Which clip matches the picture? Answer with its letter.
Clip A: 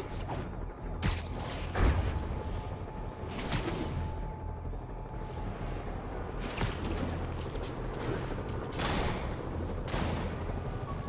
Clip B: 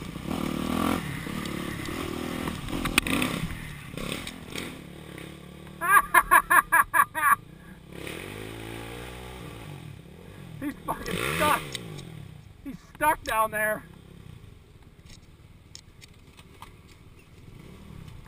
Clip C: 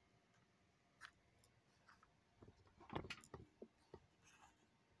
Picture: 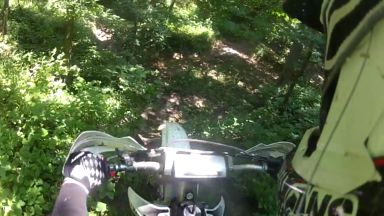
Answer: B